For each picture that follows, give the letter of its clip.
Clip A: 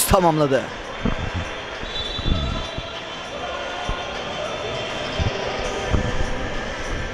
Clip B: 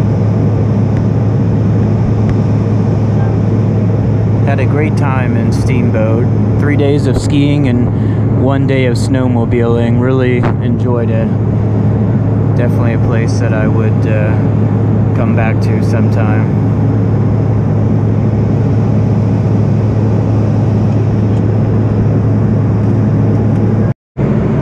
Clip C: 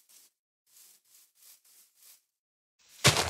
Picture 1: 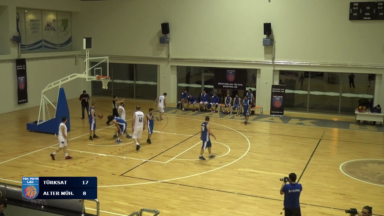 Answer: A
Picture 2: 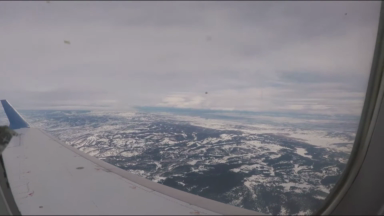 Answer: B